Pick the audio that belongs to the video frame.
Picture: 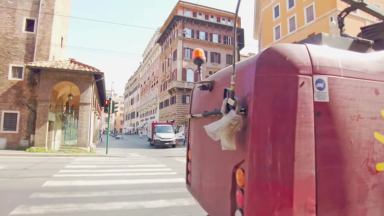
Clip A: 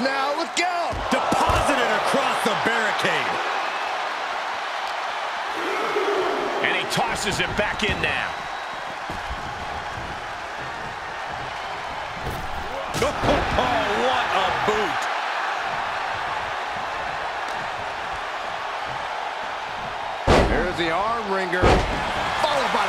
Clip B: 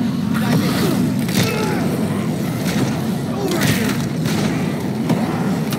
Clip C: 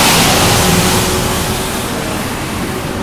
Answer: C